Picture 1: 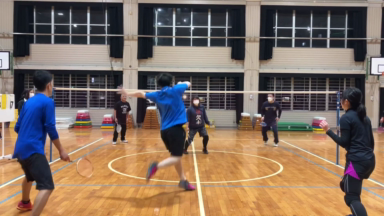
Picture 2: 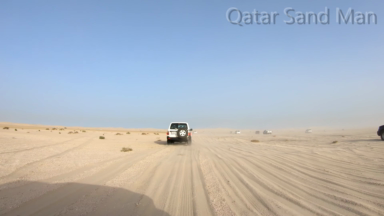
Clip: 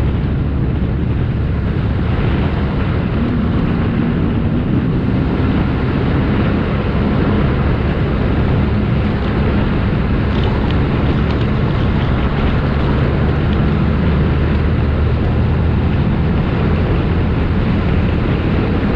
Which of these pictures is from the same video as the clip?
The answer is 2